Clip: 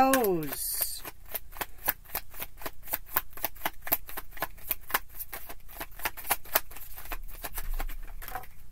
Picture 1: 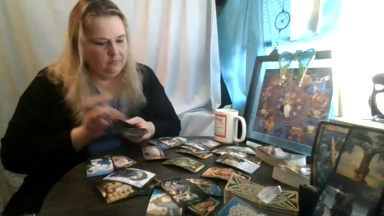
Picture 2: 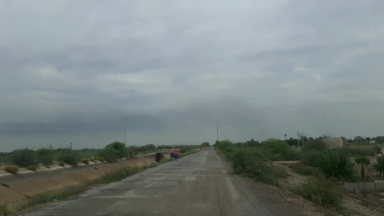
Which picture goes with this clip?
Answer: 1